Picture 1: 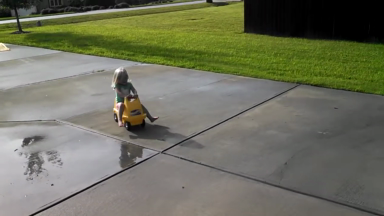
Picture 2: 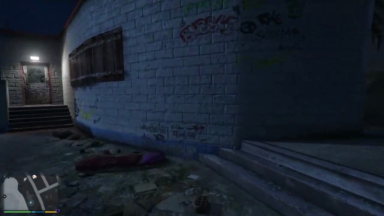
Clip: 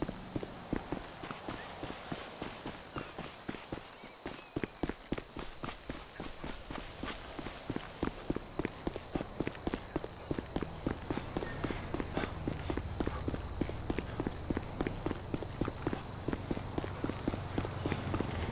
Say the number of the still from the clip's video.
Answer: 2